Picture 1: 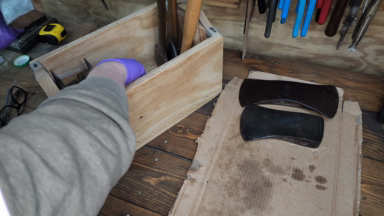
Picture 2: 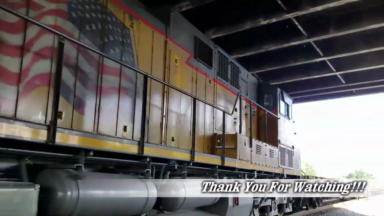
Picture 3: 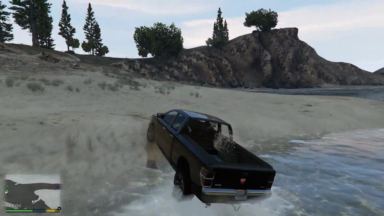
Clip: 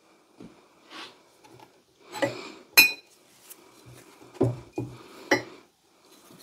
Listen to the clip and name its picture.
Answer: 1